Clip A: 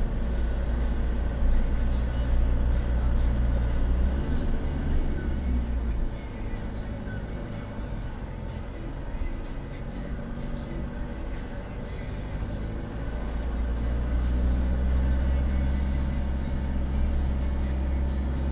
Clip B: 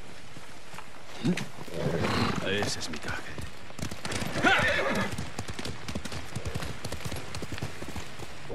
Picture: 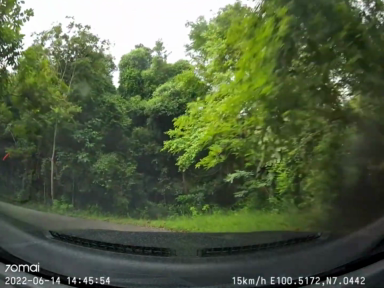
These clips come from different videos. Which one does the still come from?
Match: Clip A